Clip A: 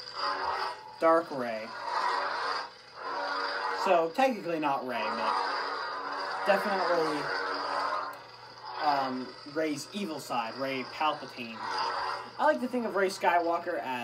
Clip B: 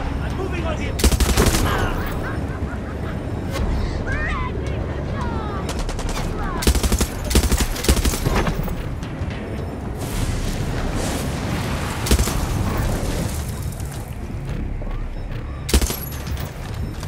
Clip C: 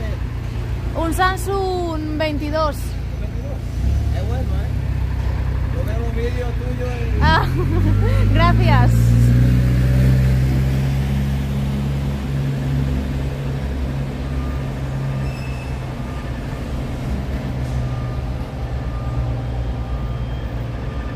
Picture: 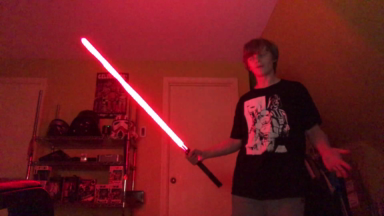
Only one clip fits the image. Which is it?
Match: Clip A